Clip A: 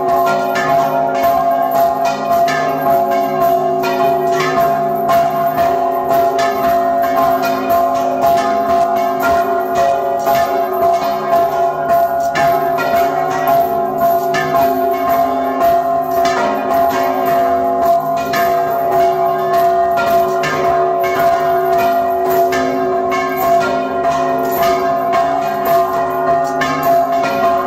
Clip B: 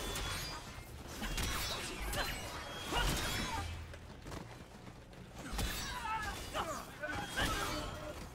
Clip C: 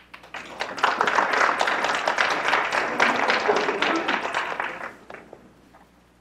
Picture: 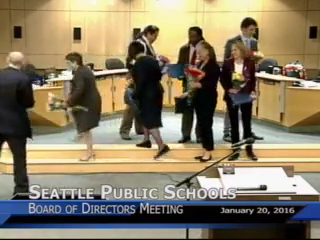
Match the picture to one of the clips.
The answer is C